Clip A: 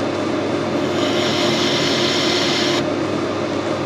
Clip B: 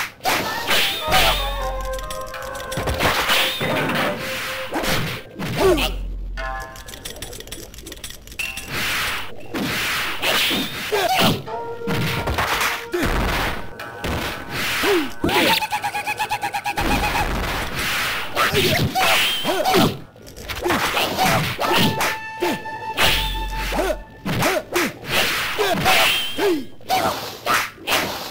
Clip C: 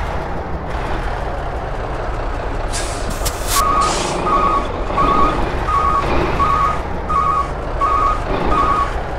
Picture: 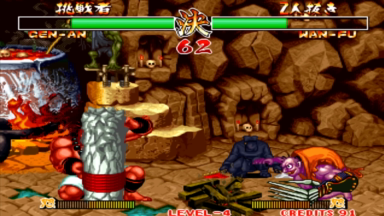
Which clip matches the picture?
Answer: B